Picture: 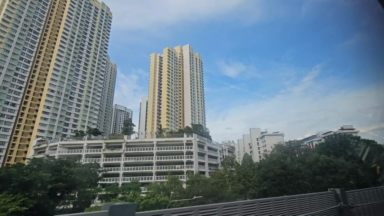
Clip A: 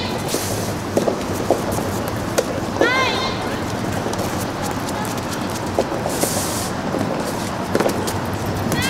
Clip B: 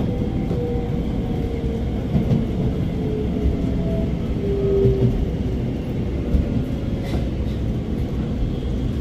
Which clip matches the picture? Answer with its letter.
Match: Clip B